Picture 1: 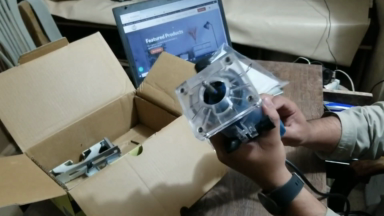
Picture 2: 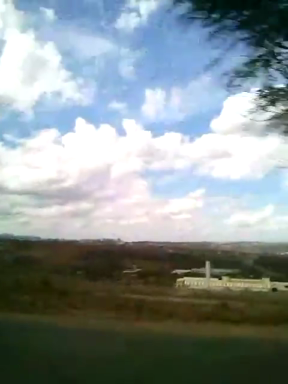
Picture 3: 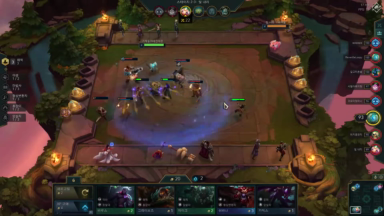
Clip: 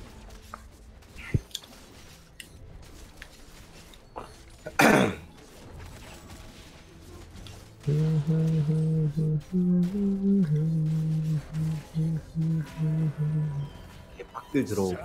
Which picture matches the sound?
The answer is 3